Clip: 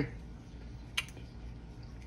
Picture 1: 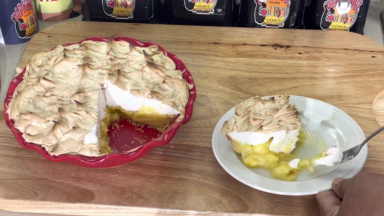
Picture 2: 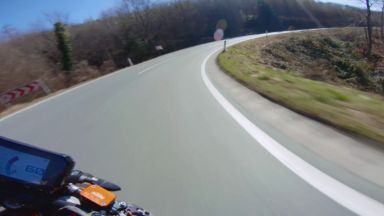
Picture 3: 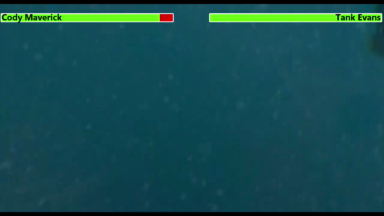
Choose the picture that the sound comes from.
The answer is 1